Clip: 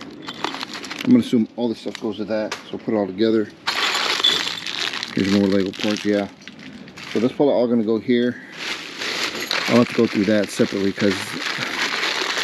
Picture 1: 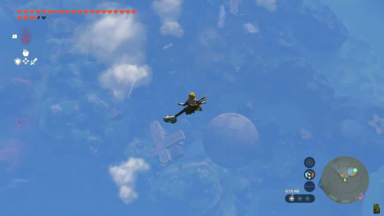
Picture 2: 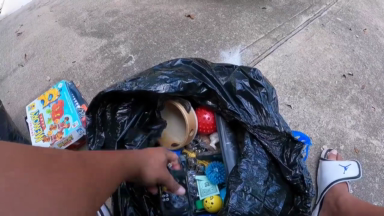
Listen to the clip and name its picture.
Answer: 2